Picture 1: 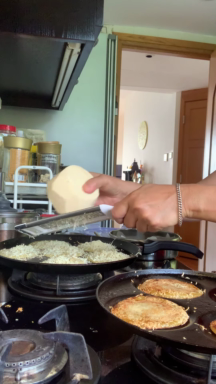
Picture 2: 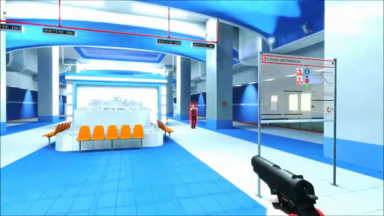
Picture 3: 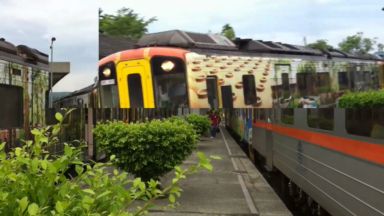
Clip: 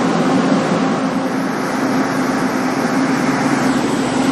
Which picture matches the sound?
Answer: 3